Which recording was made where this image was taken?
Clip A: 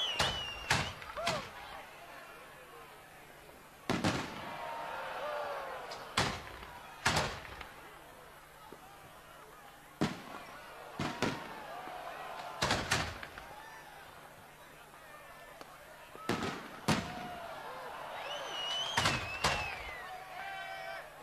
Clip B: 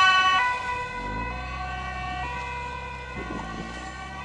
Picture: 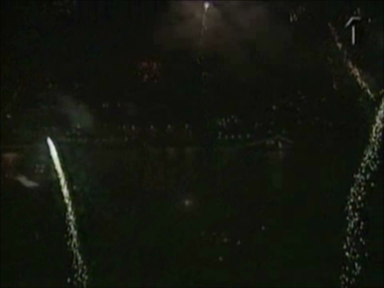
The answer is A